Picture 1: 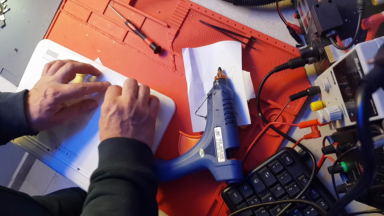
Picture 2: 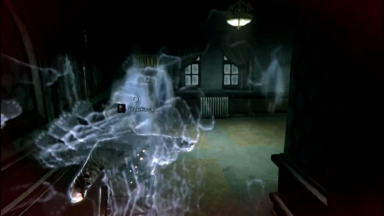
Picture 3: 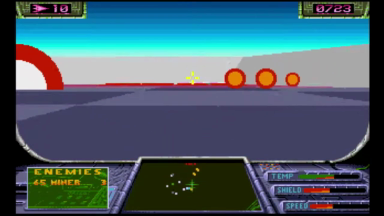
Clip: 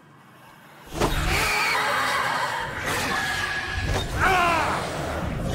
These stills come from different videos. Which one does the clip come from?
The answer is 2